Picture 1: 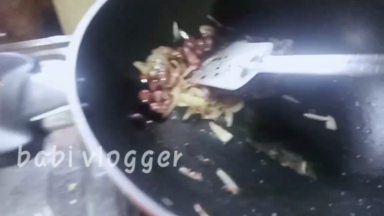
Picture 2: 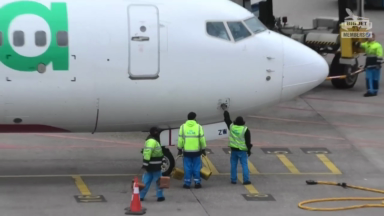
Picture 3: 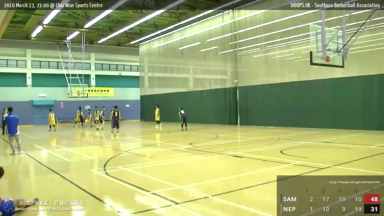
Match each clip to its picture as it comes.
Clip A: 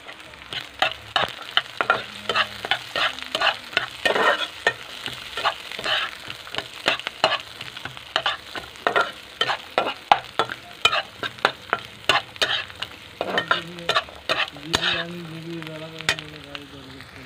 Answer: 1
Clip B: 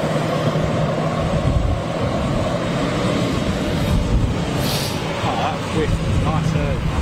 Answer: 2